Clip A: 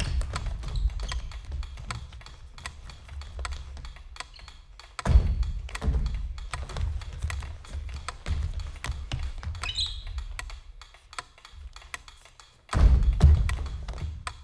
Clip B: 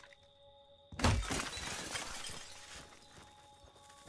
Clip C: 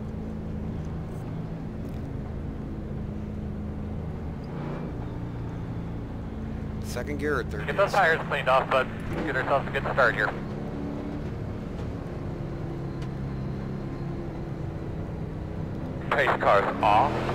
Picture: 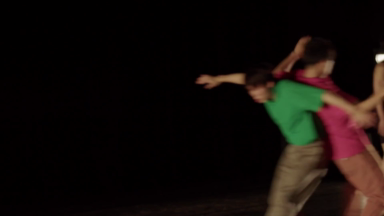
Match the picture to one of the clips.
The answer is A